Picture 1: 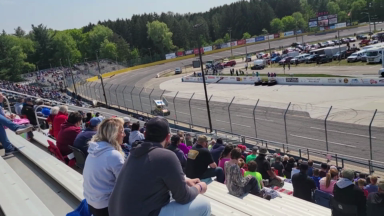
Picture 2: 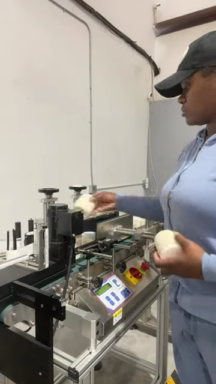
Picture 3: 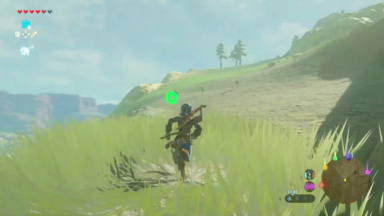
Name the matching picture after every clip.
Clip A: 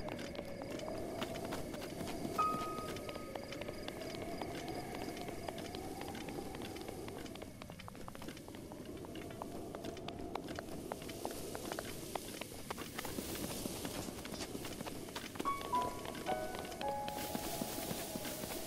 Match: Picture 3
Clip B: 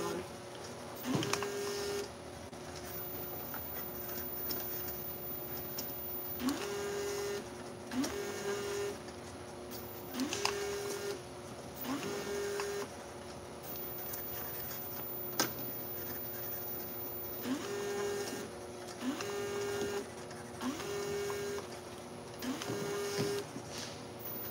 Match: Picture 2